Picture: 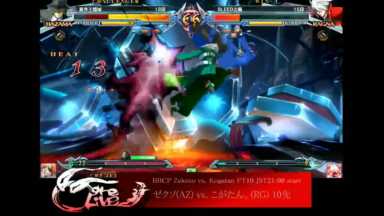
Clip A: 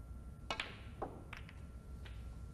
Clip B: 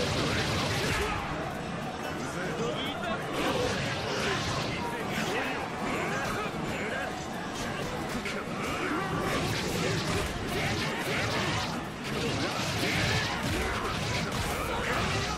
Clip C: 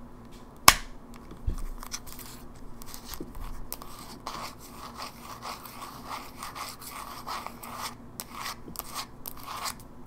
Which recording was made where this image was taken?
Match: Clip B